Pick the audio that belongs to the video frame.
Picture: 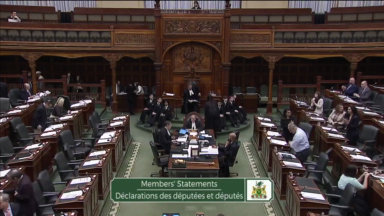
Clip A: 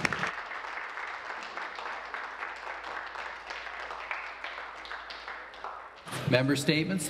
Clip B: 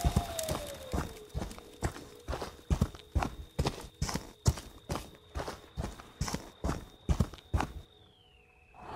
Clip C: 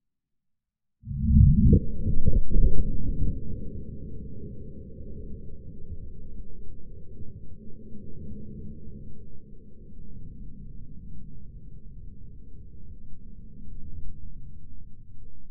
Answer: A